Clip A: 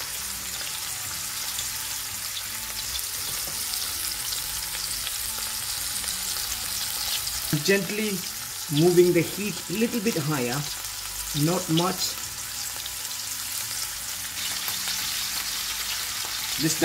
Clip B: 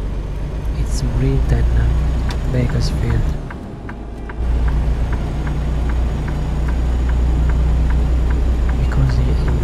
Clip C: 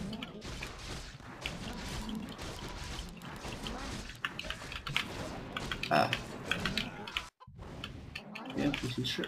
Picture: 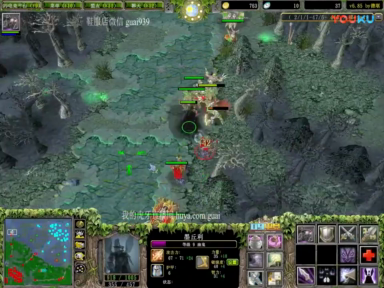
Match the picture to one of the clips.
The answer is C